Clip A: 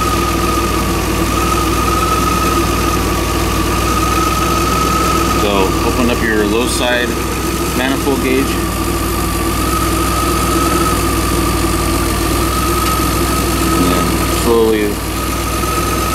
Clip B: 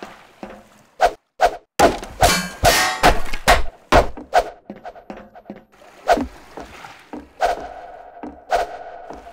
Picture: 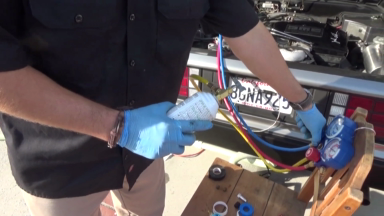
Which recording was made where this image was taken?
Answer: A